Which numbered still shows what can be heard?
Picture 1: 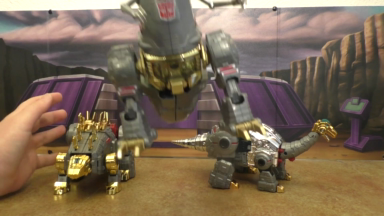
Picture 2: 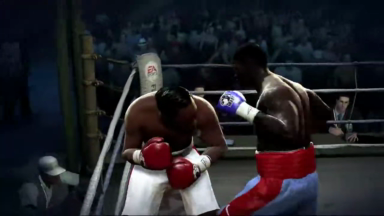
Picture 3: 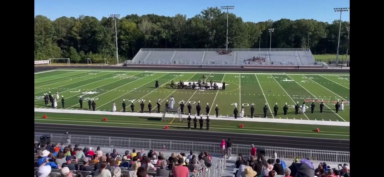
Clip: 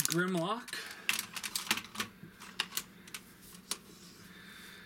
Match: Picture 1